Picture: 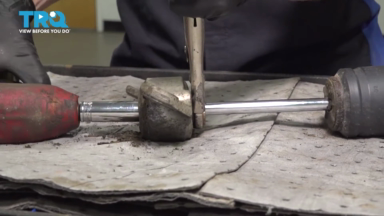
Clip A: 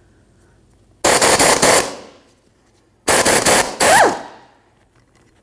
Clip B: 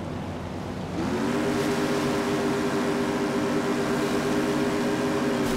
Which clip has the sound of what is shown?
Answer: A